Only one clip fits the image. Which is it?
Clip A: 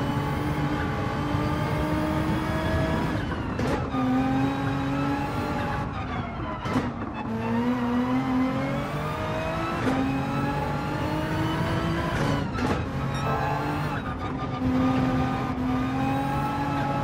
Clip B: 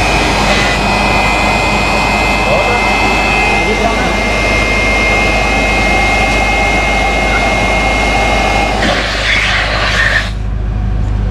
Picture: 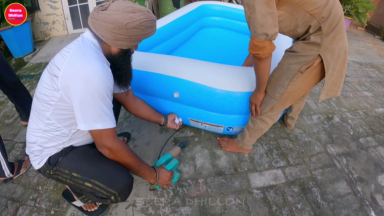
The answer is B